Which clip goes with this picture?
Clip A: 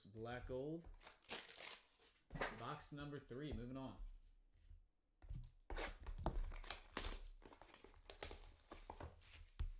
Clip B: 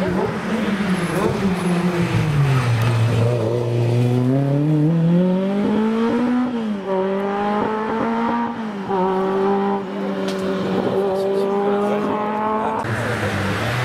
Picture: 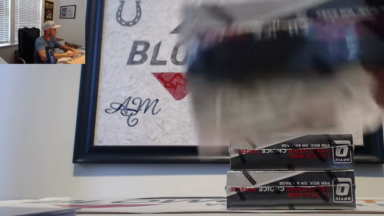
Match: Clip A